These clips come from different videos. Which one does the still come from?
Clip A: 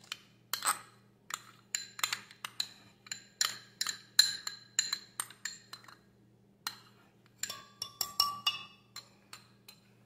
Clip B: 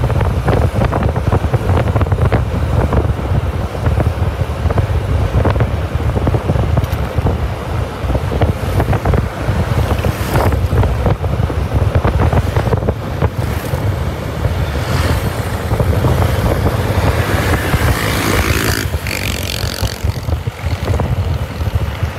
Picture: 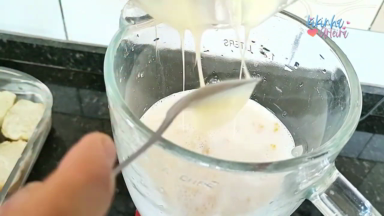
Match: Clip A